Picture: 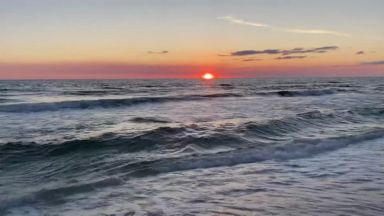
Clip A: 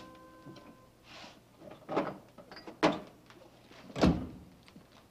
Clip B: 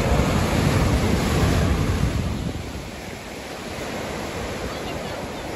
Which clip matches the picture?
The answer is B